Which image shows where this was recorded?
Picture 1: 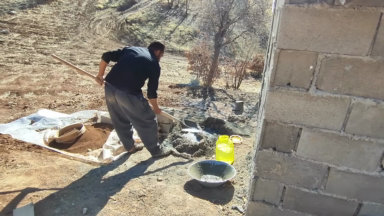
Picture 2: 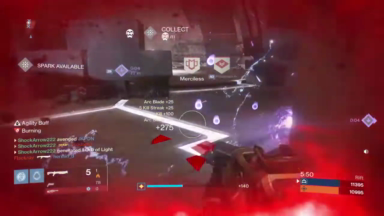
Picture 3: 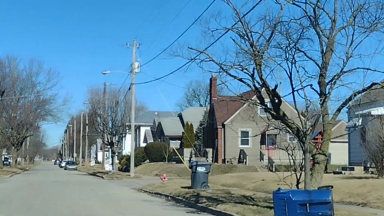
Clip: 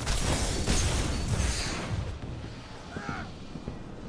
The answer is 2